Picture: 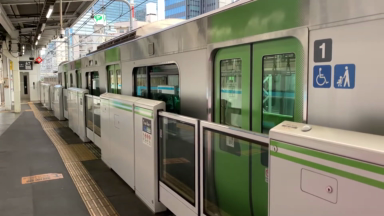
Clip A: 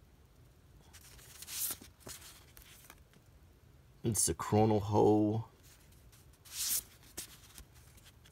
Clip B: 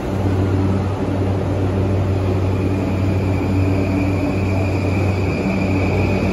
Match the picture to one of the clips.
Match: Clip B